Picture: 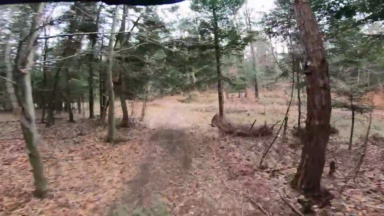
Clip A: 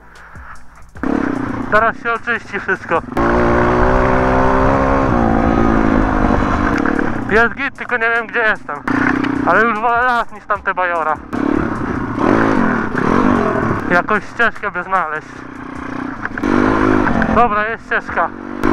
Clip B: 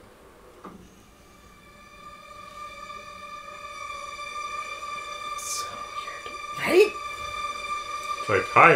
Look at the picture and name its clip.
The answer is A